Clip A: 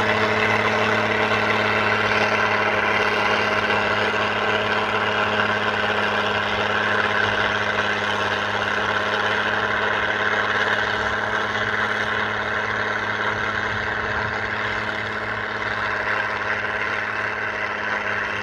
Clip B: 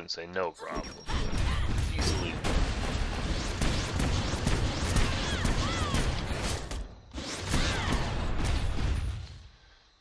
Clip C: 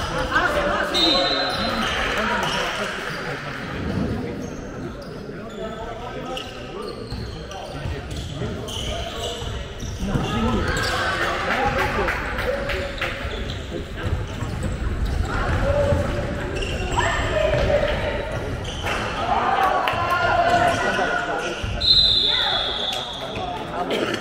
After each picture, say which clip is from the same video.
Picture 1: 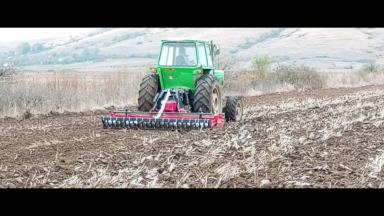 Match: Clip A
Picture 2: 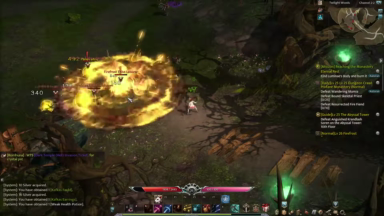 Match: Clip B